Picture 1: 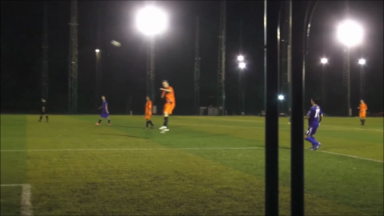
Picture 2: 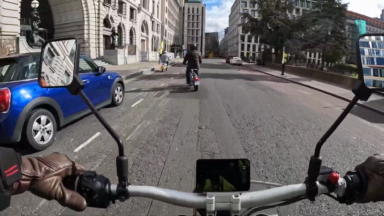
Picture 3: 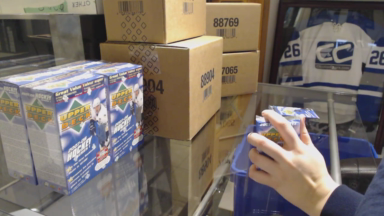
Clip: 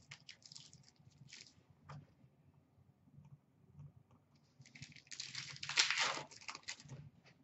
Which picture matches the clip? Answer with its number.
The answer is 3